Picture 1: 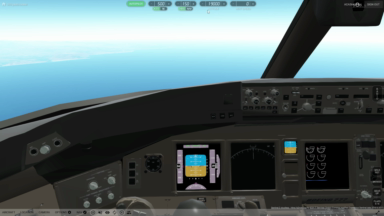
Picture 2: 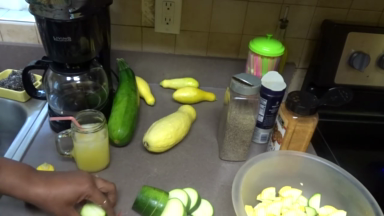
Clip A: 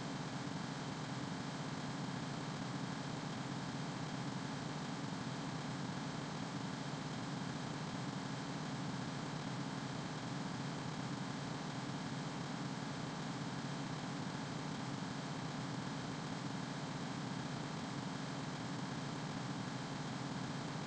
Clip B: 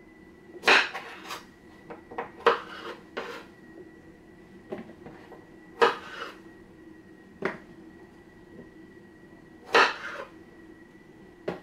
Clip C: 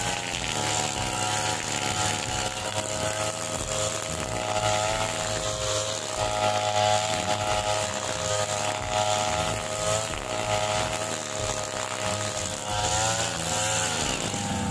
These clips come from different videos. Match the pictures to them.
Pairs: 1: A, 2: B